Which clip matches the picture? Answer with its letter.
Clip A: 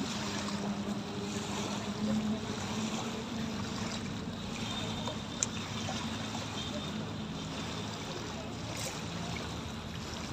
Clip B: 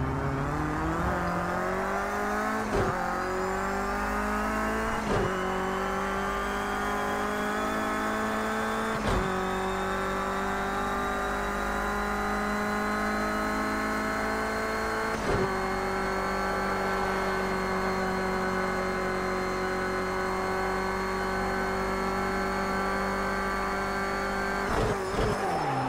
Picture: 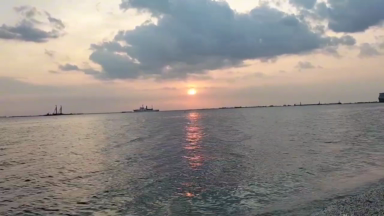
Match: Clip A